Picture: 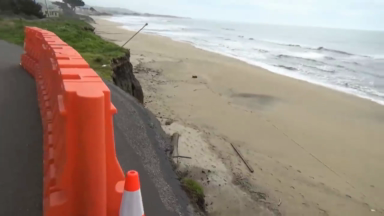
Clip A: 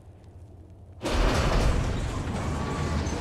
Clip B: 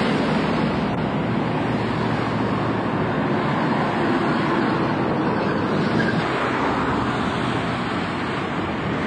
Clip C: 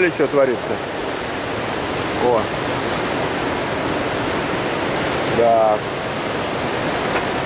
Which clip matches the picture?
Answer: C